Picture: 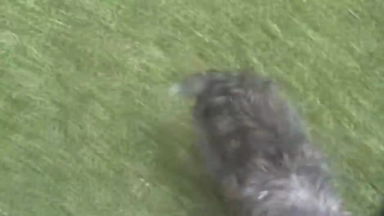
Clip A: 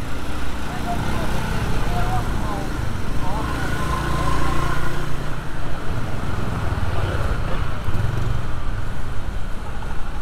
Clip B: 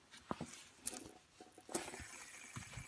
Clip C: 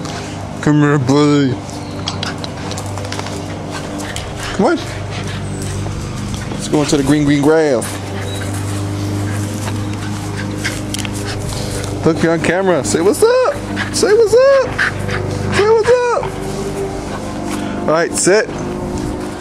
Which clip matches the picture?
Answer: C